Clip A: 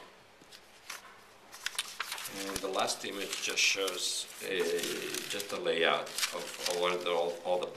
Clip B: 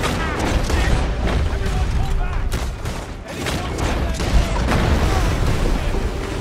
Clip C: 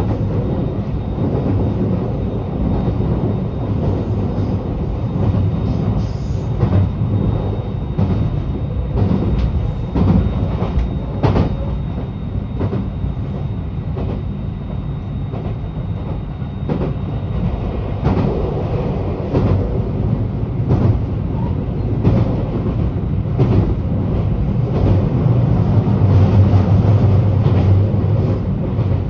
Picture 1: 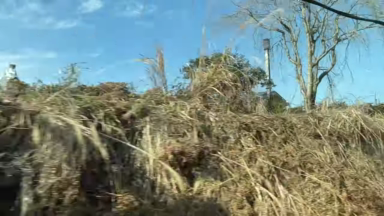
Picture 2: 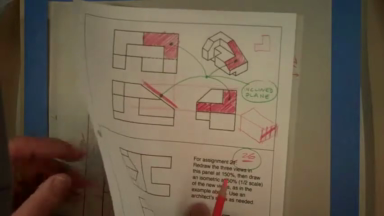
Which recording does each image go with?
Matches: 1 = C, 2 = A